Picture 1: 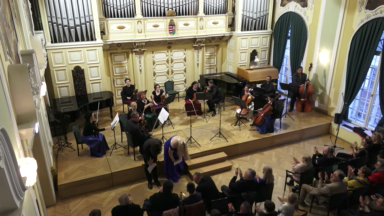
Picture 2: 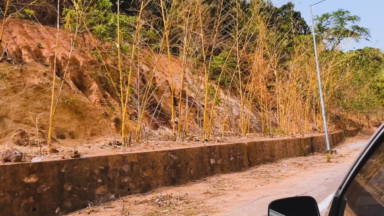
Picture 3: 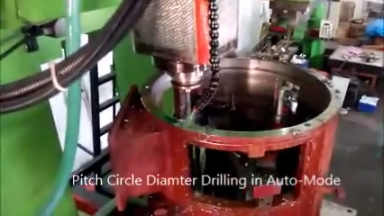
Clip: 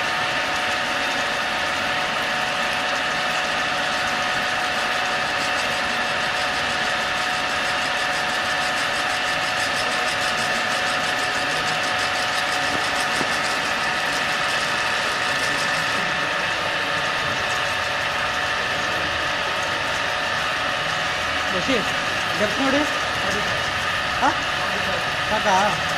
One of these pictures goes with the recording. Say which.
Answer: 3